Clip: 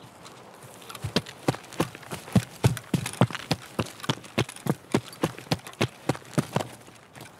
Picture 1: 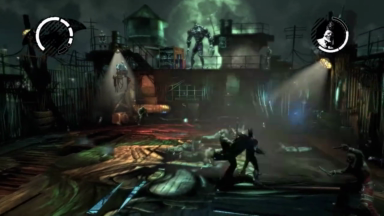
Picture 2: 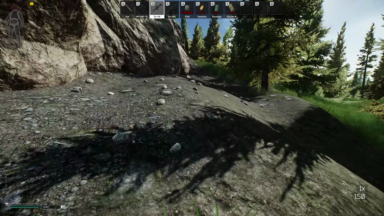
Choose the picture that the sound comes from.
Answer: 2